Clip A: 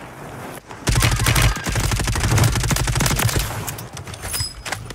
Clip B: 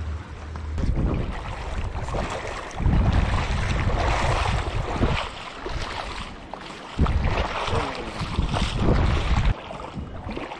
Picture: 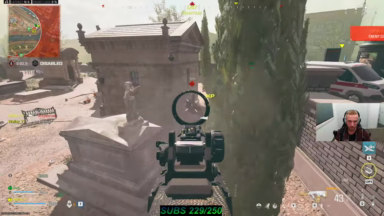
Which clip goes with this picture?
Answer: A